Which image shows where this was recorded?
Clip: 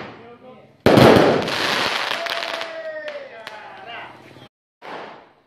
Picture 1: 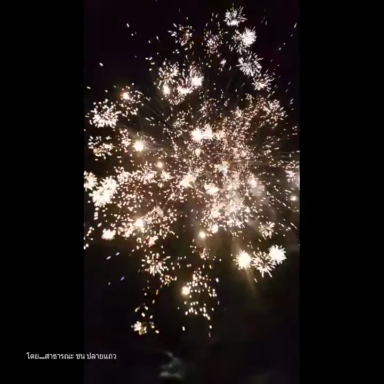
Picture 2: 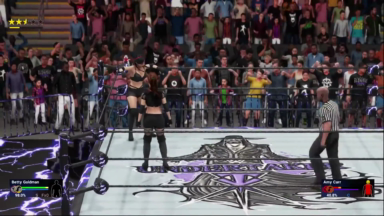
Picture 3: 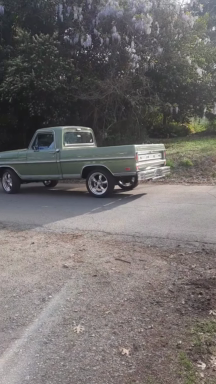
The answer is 1